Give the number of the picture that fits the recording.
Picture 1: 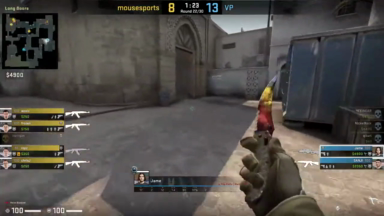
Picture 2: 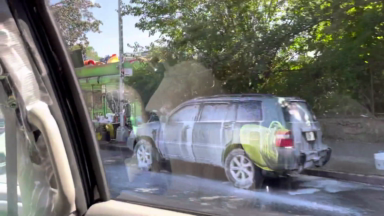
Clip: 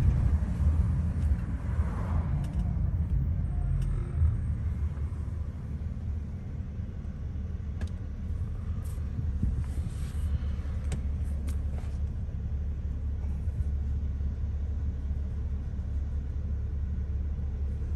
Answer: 2